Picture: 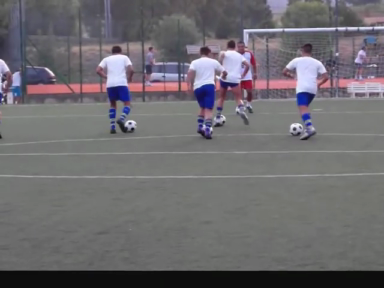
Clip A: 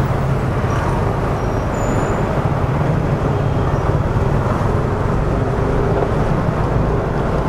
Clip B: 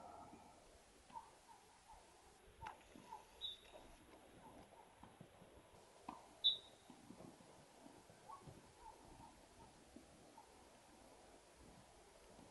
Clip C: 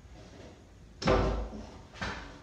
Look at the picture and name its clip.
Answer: B